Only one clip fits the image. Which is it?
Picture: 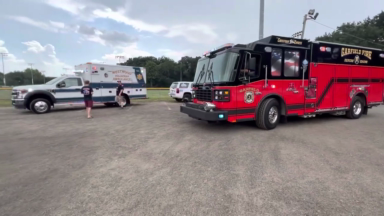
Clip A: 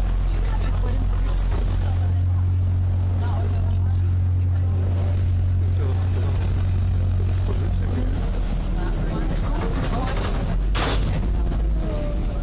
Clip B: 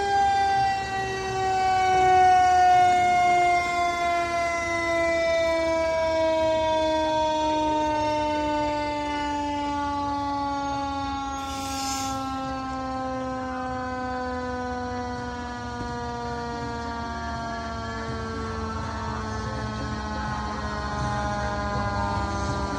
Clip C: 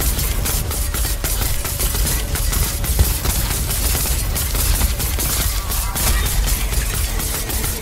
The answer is B